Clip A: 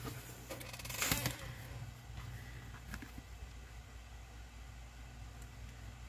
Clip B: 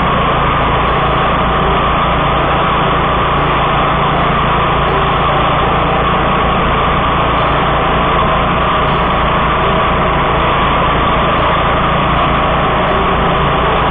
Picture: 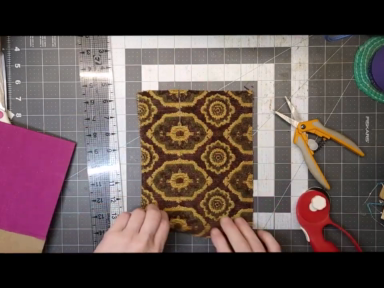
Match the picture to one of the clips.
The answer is A